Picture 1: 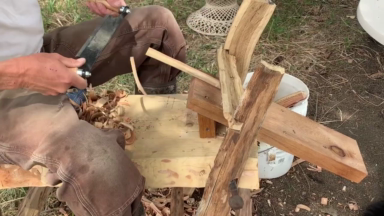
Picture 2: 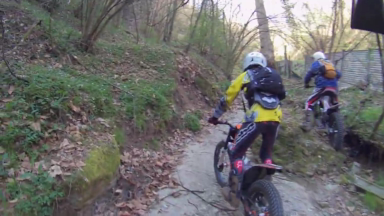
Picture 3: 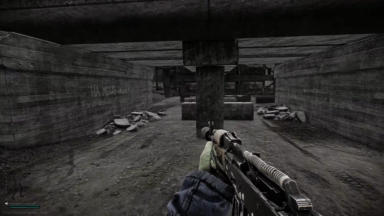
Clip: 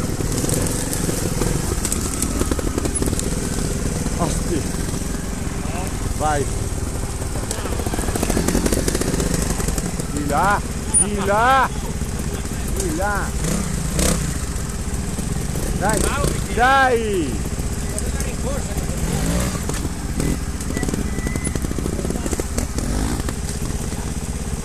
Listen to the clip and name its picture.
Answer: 2